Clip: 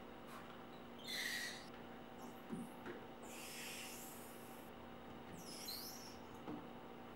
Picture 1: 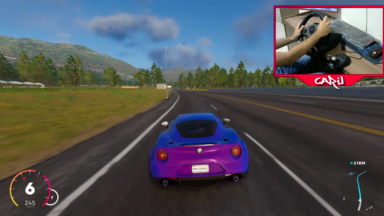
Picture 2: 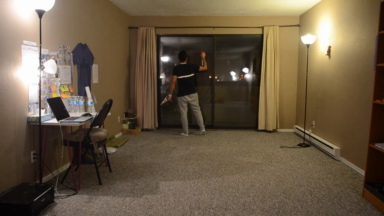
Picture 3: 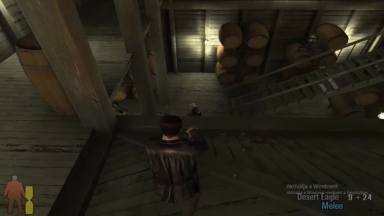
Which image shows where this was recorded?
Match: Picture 2